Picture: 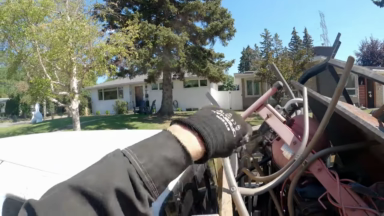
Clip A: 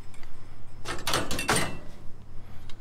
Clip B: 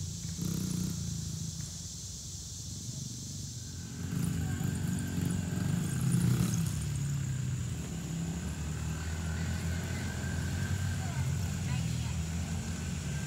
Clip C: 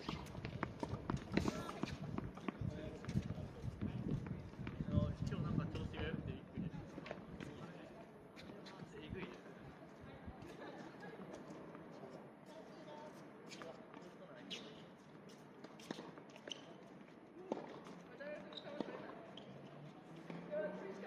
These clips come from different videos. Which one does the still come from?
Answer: A